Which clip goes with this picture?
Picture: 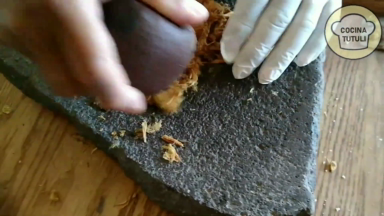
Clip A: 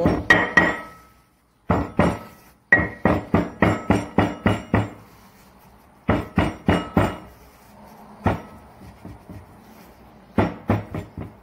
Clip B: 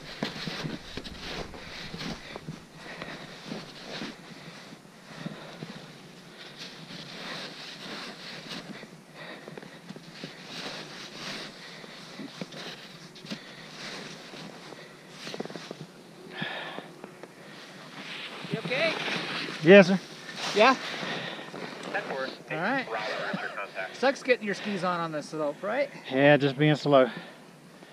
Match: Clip A